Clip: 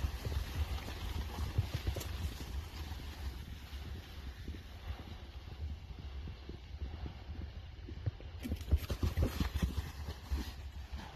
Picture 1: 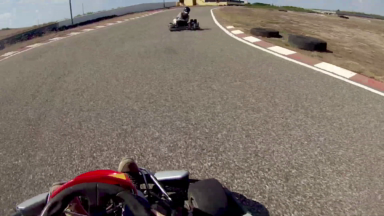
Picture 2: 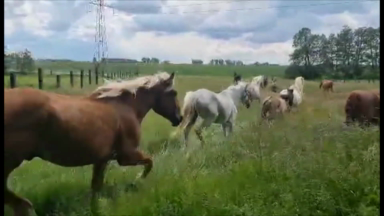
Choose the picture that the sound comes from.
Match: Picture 2